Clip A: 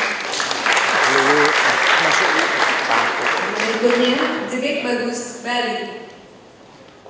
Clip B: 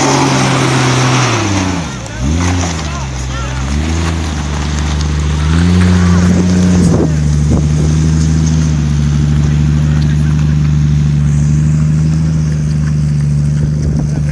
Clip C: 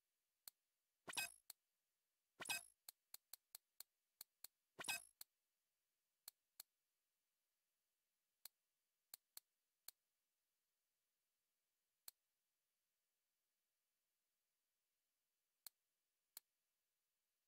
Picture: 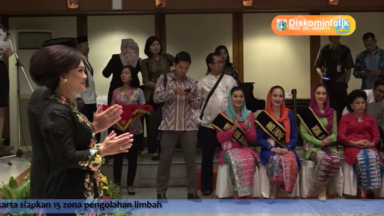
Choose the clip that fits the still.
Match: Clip A